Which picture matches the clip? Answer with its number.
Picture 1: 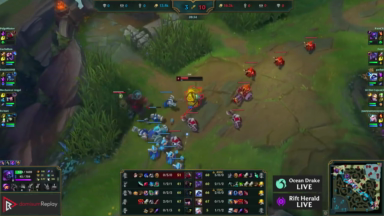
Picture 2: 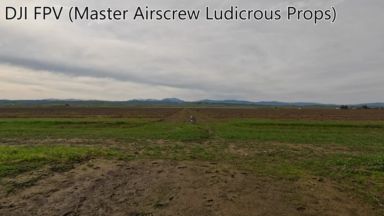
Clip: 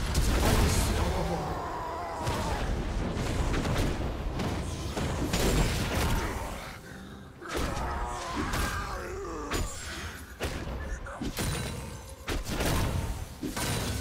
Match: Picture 1